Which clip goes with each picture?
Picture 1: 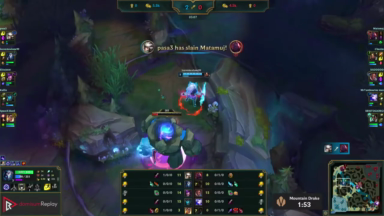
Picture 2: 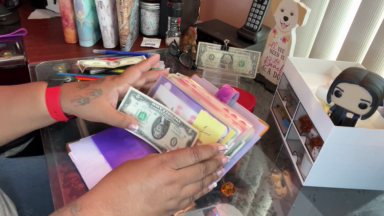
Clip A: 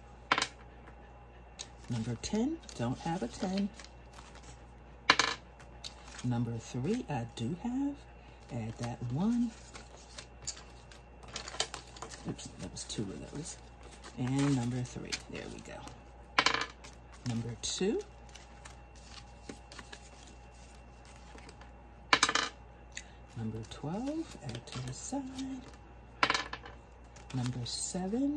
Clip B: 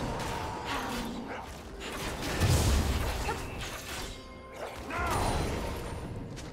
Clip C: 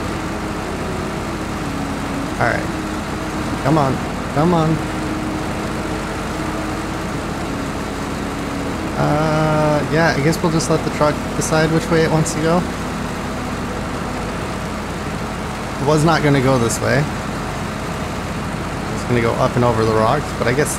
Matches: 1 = B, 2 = A